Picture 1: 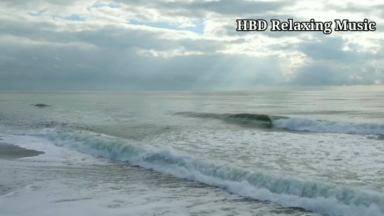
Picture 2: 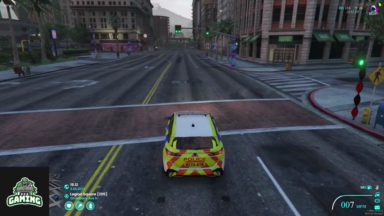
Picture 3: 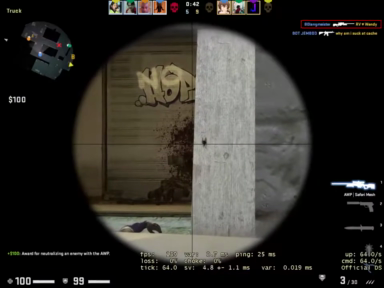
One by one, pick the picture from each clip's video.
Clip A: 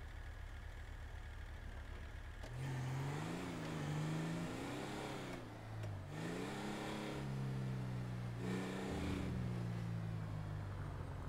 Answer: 2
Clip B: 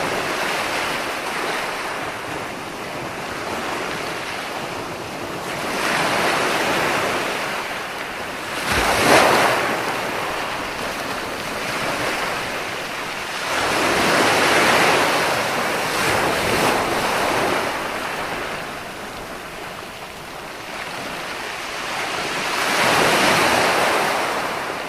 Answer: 1